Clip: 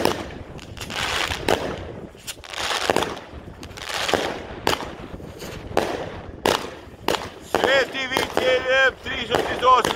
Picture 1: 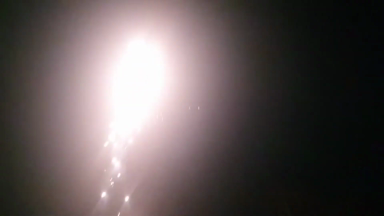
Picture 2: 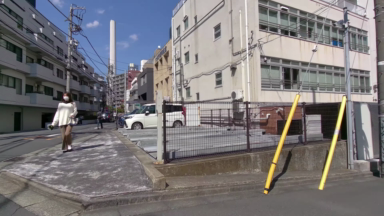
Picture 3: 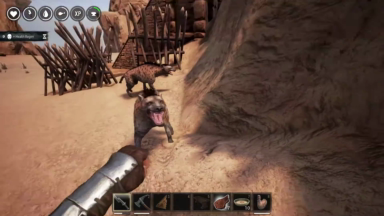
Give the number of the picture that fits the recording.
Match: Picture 1